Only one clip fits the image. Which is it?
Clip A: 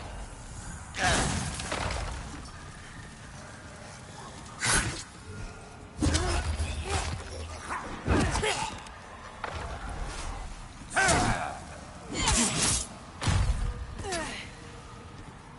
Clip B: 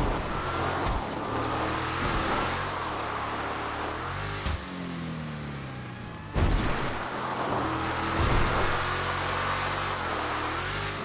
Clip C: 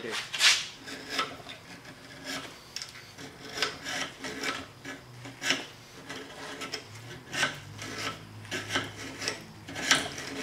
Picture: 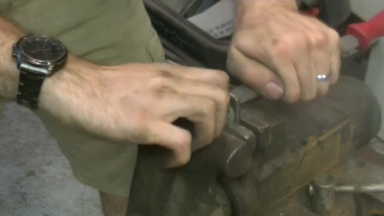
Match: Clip C